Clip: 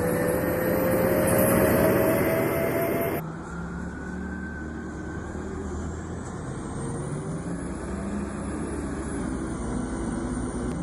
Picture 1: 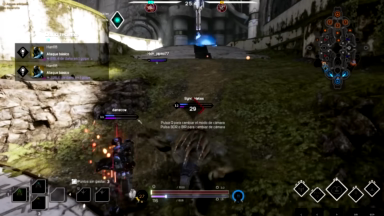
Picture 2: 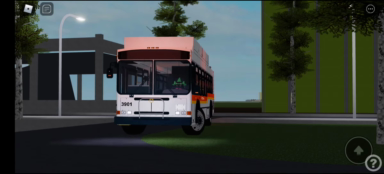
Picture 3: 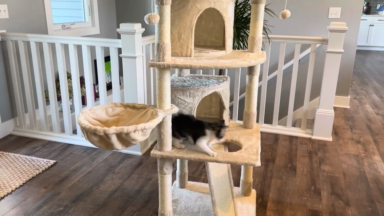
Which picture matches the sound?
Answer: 2